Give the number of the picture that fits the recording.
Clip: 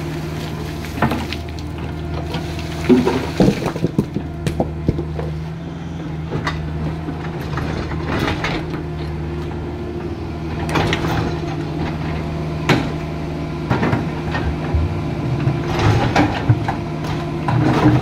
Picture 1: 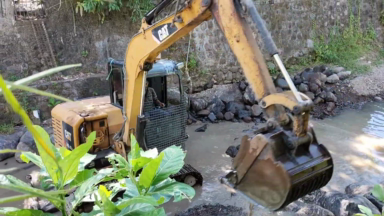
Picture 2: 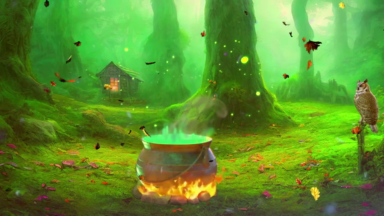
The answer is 1